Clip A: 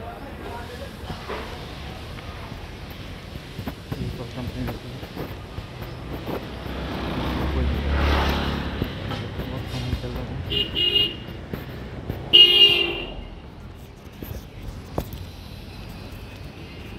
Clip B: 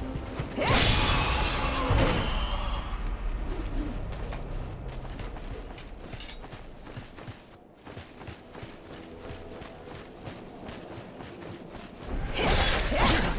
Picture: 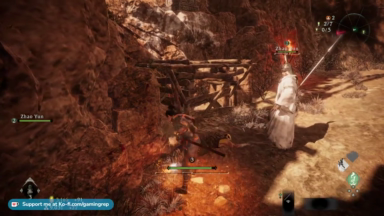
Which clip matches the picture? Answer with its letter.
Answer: B